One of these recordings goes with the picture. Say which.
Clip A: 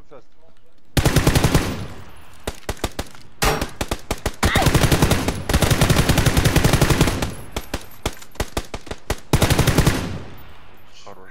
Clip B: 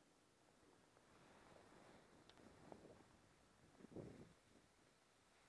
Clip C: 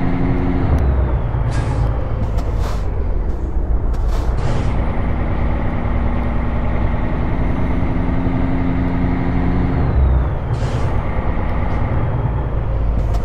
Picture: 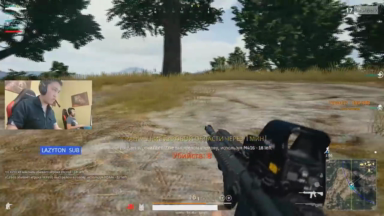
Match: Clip A